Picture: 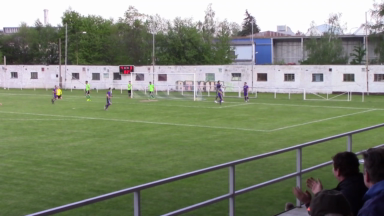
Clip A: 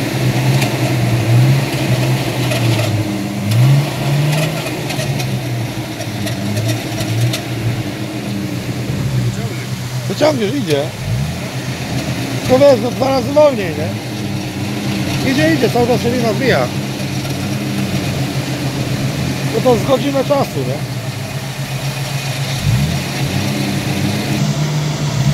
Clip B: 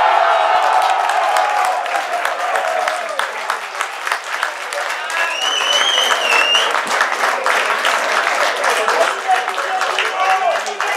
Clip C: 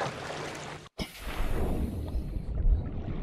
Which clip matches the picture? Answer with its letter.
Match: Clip B